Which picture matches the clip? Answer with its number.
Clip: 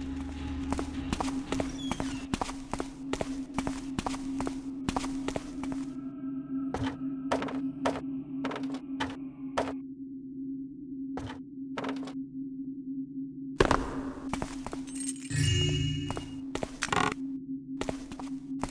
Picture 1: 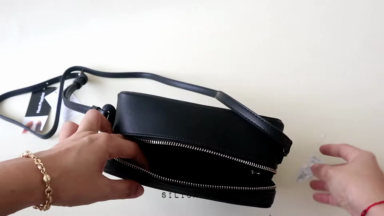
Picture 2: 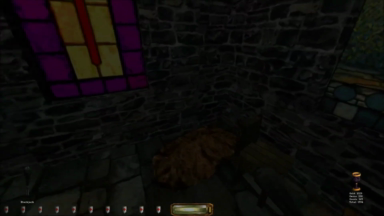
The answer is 2